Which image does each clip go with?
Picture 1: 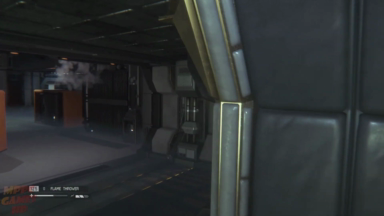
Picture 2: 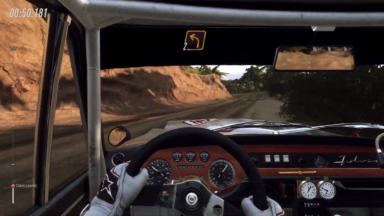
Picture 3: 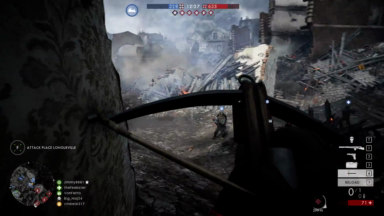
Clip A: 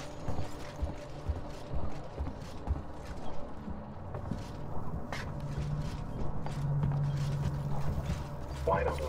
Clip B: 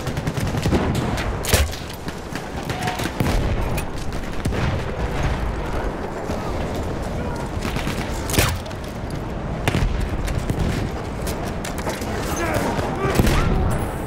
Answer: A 1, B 3